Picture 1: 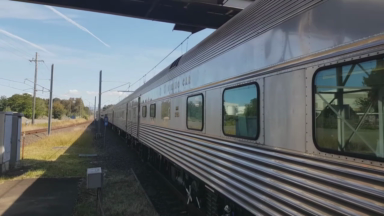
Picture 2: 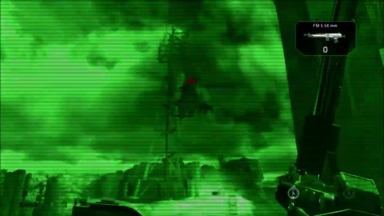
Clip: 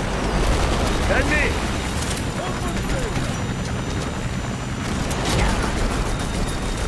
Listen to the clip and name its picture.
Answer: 2